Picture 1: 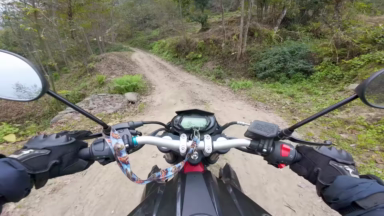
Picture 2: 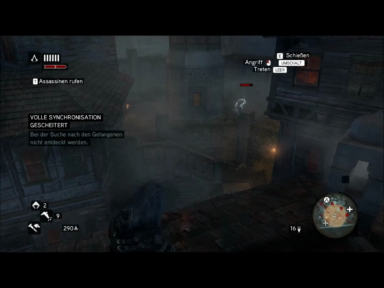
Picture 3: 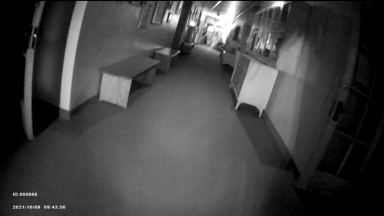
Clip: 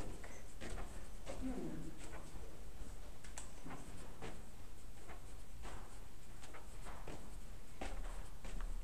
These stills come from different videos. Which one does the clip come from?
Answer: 3